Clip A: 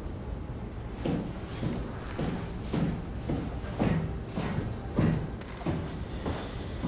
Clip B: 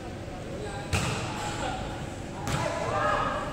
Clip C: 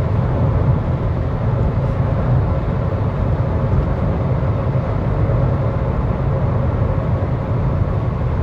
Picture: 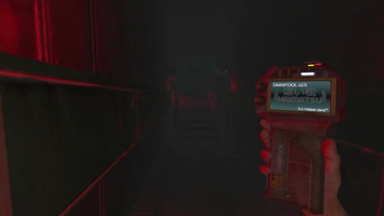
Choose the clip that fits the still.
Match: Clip A